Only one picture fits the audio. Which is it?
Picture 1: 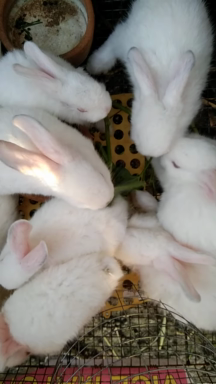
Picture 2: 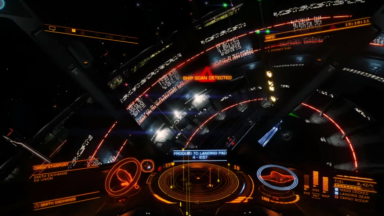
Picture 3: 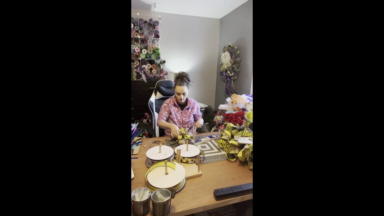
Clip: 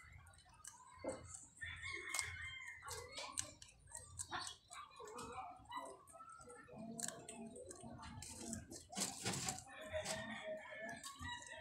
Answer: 1